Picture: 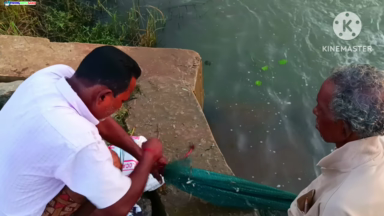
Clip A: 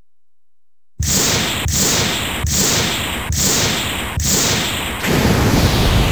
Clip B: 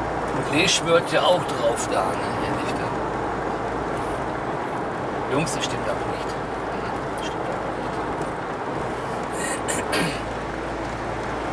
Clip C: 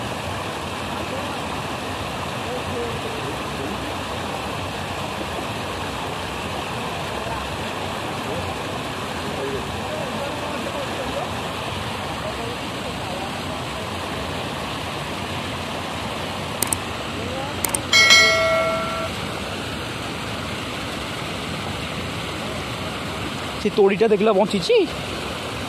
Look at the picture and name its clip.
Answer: C